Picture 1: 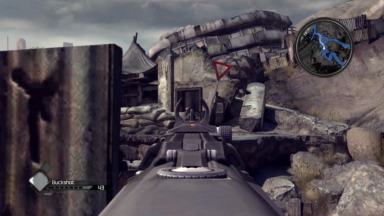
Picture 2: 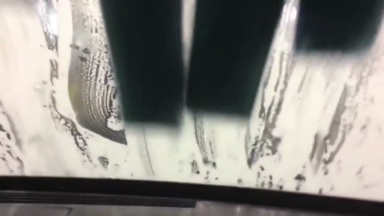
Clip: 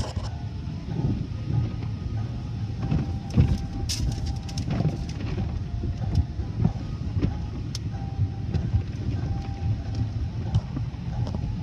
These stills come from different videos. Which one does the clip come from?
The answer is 2